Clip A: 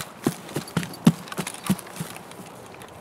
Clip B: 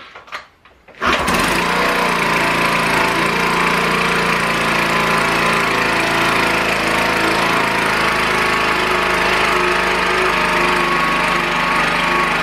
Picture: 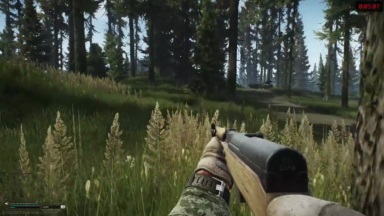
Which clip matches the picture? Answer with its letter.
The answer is A